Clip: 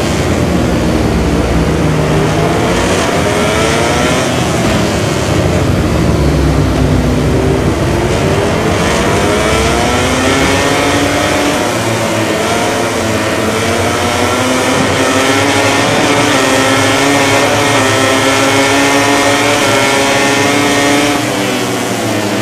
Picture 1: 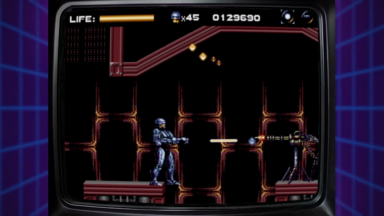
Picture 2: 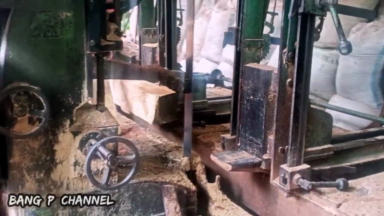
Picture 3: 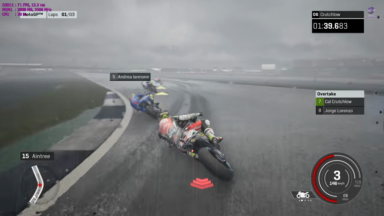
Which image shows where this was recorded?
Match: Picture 3